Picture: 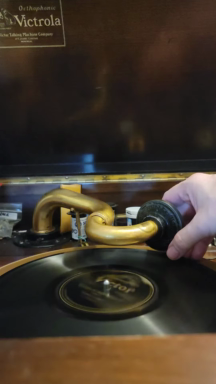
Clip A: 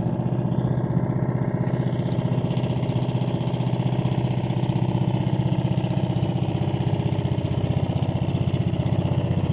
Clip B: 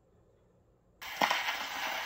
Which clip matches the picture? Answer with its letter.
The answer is B